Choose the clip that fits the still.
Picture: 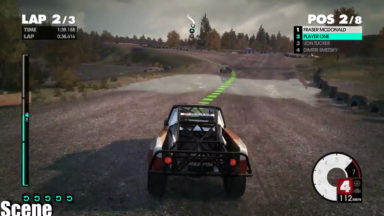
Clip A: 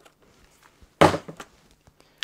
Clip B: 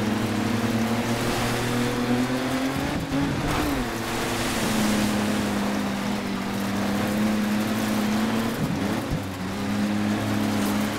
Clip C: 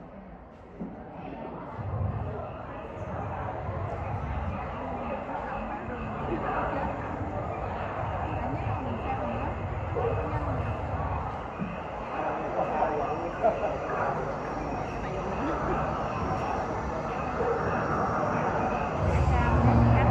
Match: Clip B